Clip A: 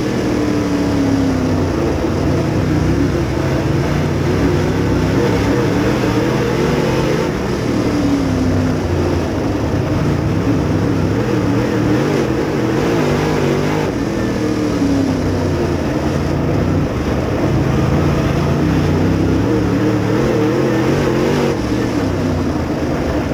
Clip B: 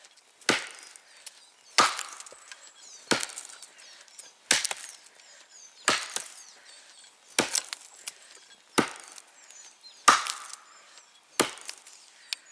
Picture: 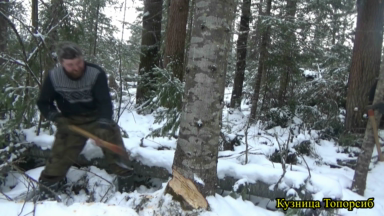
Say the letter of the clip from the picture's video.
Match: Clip B